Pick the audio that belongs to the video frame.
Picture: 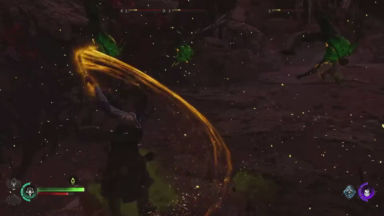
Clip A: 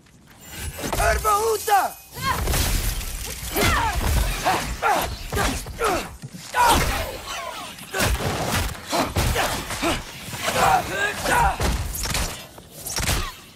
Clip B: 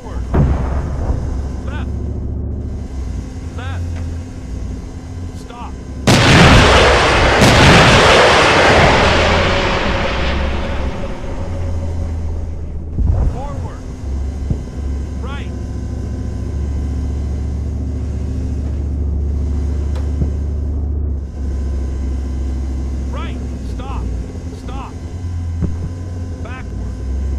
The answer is A